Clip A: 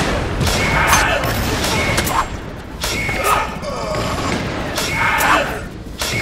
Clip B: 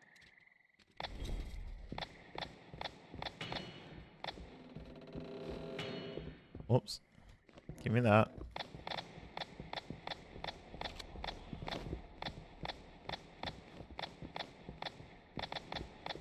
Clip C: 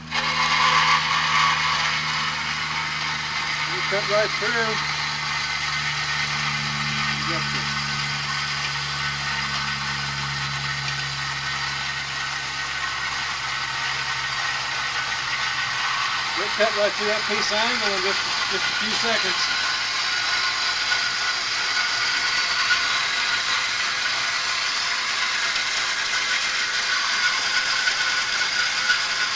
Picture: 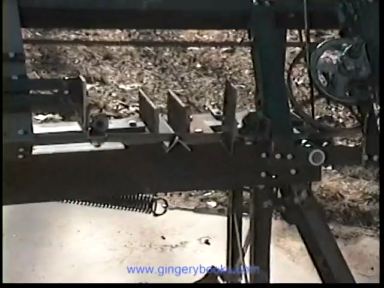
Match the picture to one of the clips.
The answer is C